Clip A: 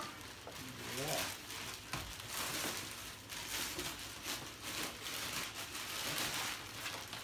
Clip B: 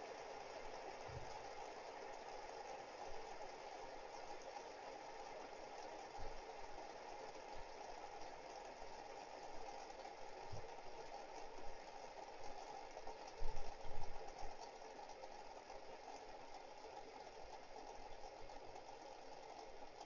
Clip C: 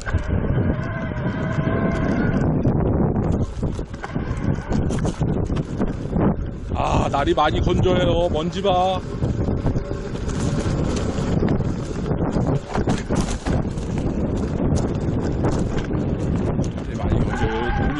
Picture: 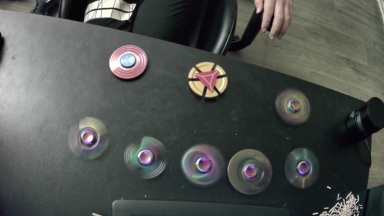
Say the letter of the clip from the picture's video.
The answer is B